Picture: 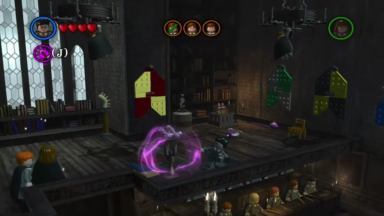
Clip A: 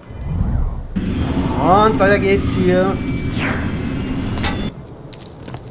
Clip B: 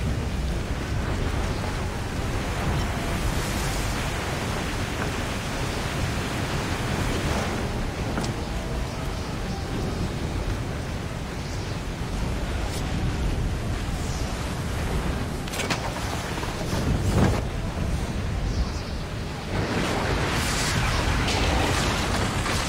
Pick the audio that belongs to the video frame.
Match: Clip A